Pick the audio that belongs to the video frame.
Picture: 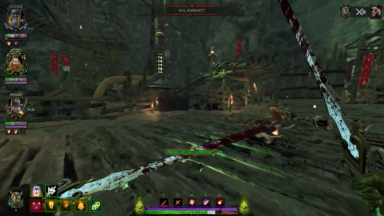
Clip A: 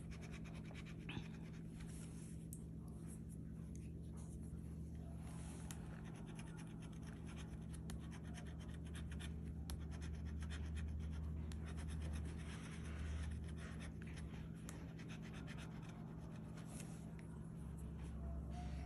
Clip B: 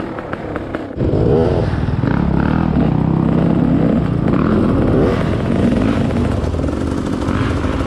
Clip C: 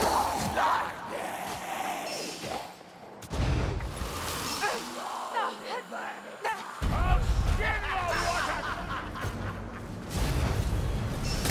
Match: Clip C